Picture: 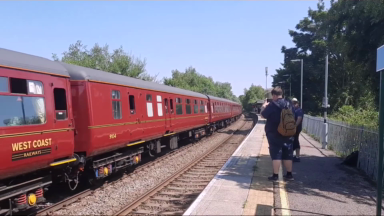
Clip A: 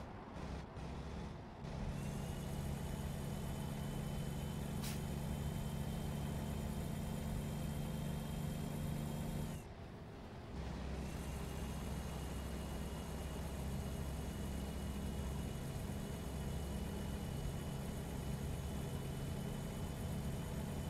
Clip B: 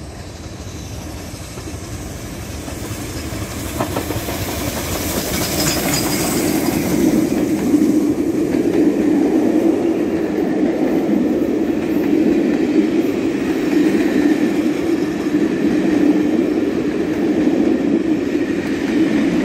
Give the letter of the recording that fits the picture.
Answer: B